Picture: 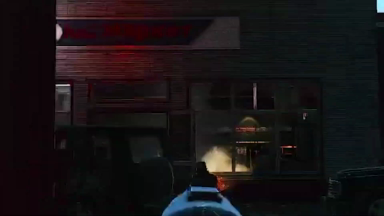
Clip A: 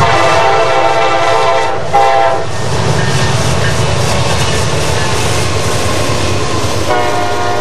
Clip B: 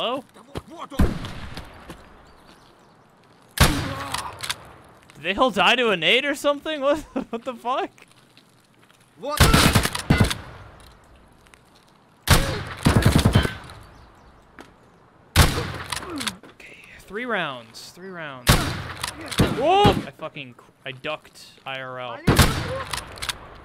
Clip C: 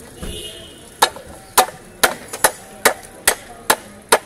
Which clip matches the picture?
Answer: B